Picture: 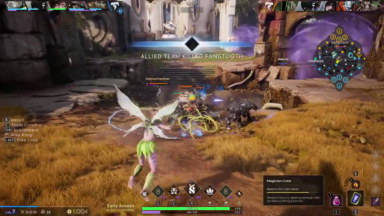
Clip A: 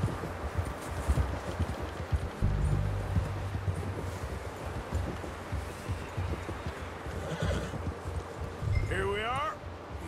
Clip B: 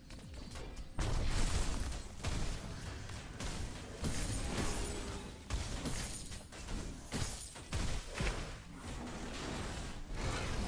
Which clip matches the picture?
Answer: B